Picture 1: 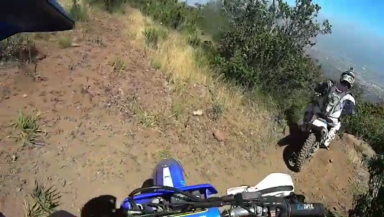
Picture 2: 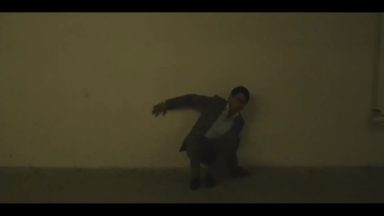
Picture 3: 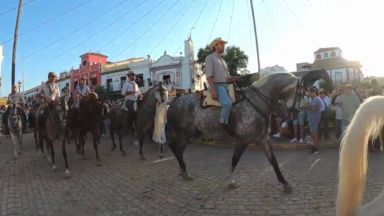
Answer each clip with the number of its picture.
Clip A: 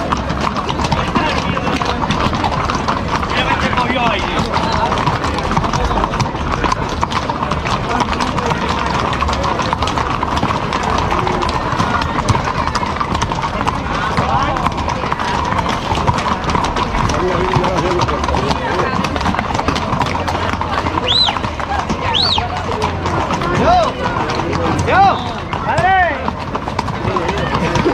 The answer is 3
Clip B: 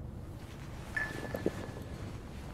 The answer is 2